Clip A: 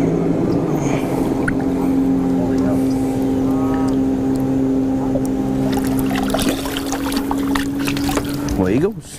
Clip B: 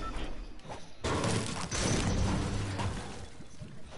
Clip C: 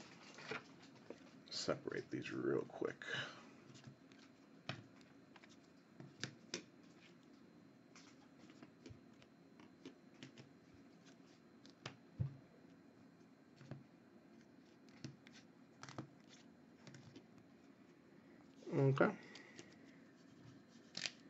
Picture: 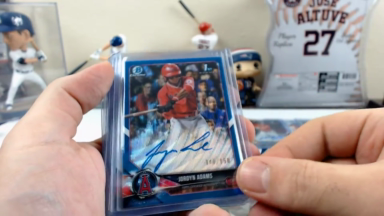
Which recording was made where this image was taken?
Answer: C